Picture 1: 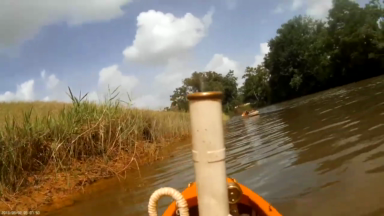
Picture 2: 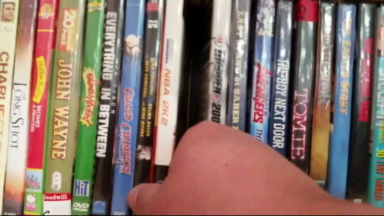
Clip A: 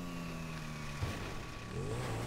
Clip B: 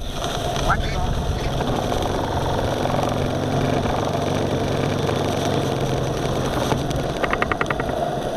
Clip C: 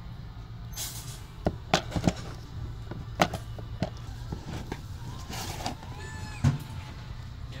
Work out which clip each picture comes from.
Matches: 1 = B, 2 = C